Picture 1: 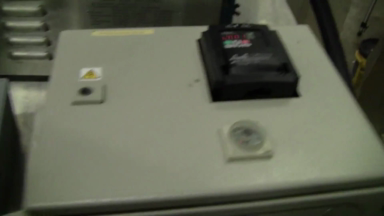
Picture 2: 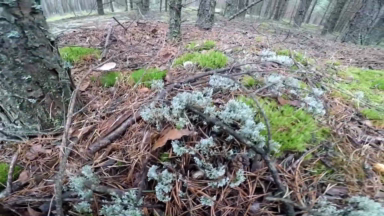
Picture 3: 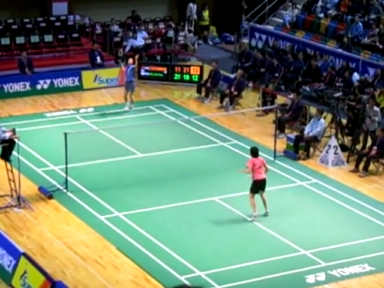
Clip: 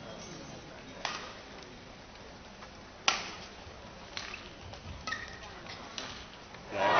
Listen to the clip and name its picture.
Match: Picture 3